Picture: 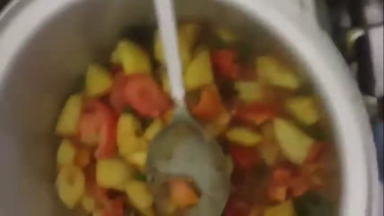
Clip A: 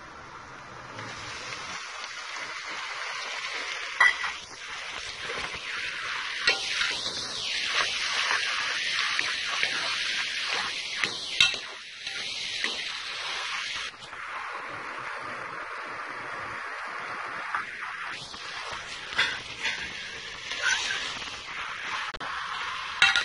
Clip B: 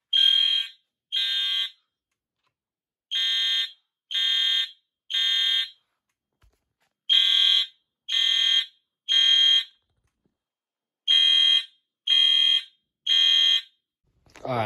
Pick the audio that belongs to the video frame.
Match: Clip A